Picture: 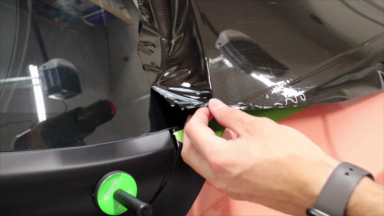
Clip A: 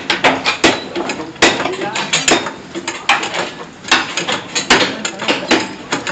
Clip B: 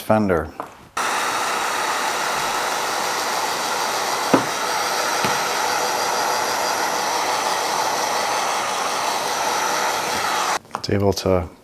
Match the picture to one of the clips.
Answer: B